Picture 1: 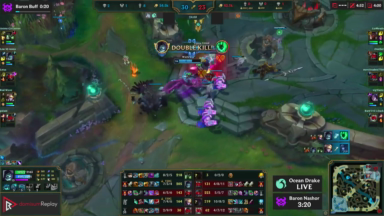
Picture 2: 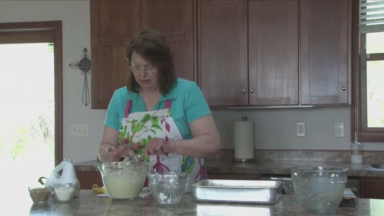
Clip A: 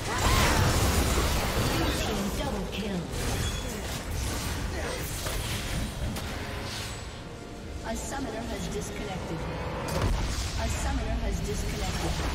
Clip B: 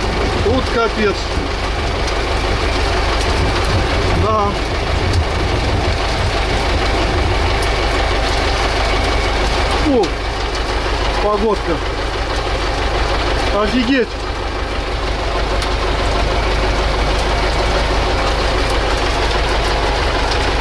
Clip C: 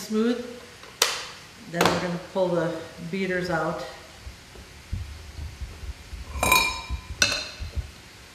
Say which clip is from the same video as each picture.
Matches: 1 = A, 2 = C